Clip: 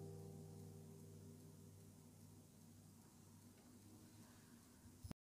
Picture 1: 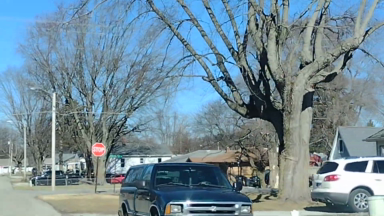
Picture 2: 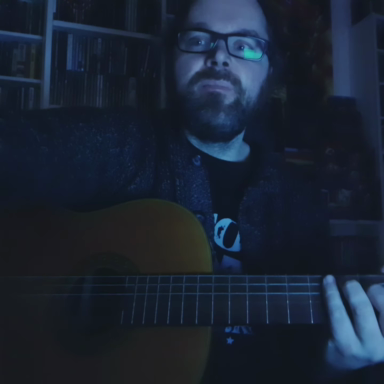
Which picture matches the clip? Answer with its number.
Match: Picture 2